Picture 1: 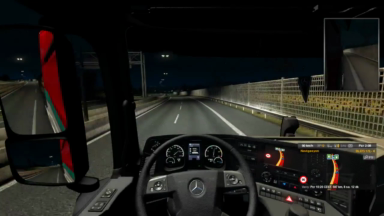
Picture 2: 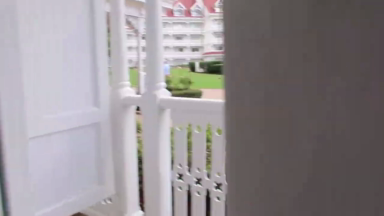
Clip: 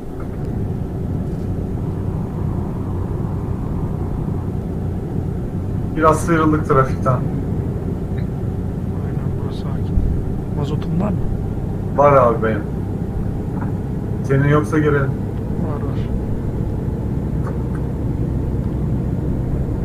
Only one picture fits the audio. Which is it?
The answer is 1